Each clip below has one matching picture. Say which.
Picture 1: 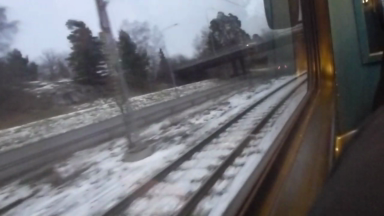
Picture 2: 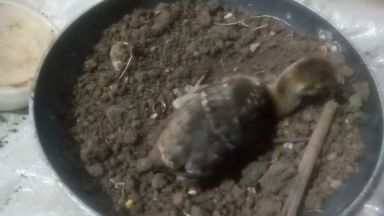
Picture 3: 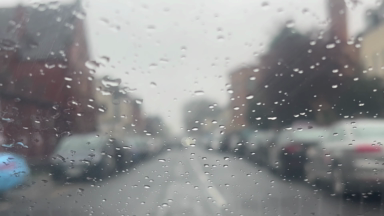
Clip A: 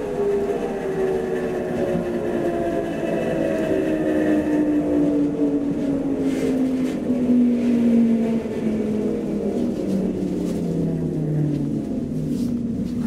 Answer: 1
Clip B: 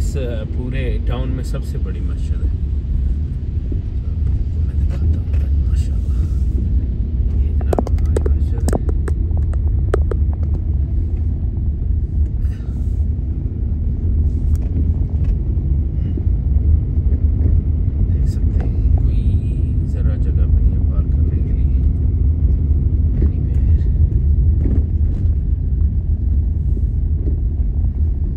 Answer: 3